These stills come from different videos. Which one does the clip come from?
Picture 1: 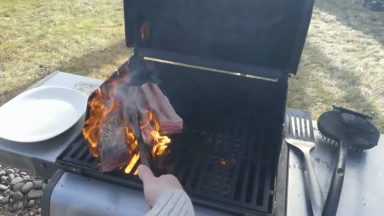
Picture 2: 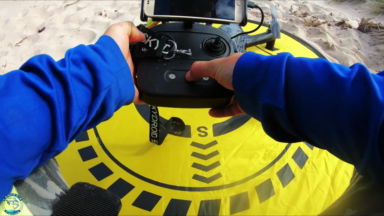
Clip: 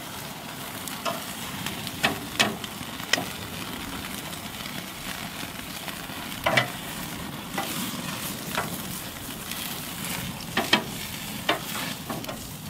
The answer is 1